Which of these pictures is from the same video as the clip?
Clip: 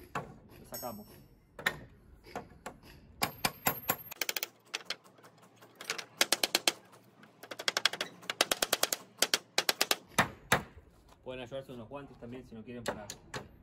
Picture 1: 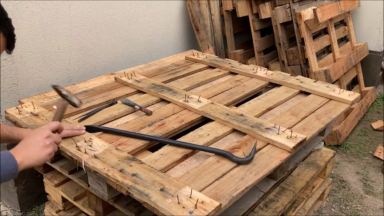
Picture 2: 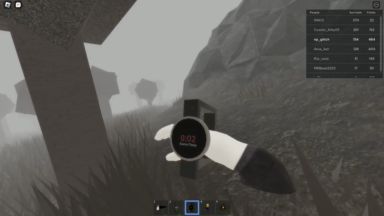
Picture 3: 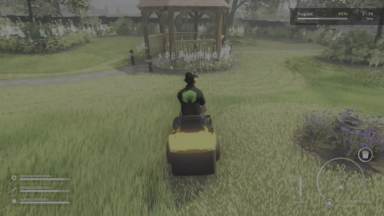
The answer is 1